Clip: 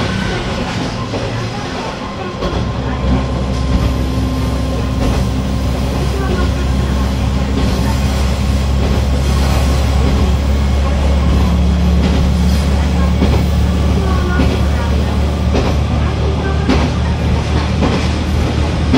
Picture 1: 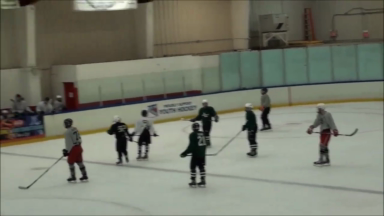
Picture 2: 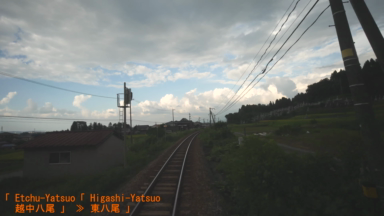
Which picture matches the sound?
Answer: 2